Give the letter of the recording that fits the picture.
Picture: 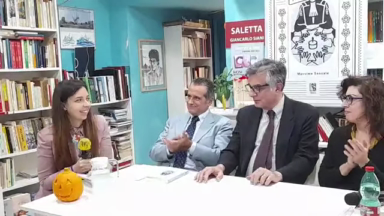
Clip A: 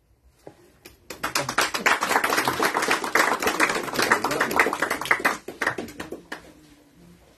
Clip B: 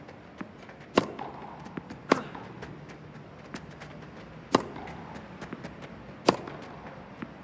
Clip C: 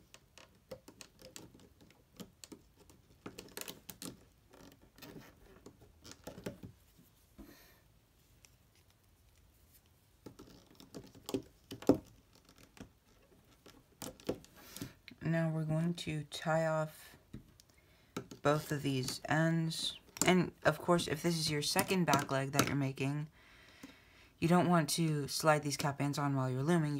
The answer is A